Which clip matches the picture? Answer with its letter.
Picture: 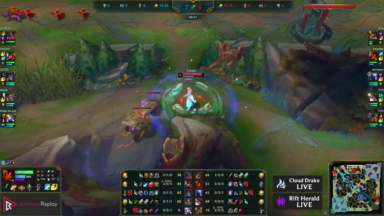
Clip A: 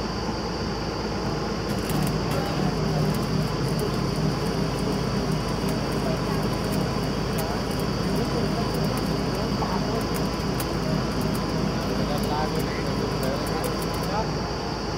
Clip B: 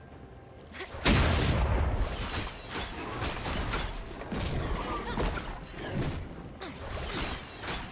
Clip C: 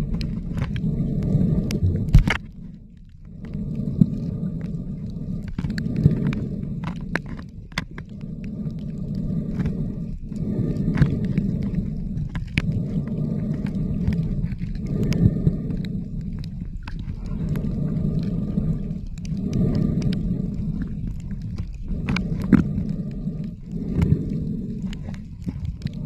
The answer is B